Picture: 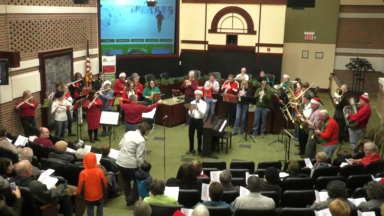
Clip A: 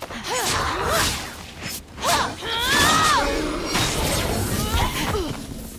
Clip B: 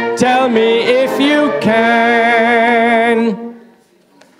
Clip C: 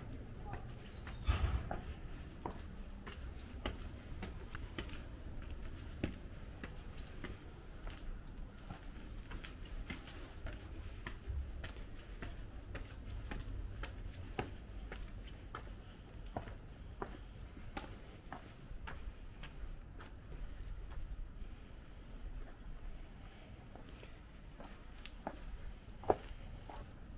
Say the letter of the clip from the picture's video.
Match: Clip B